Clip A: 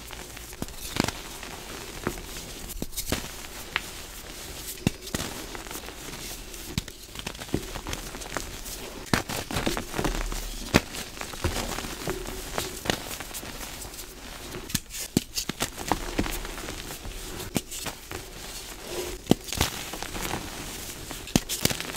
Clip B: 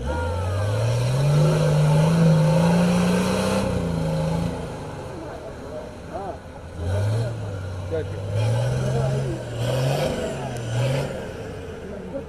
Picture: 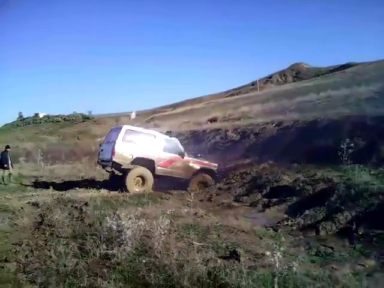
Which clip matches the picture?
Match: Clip B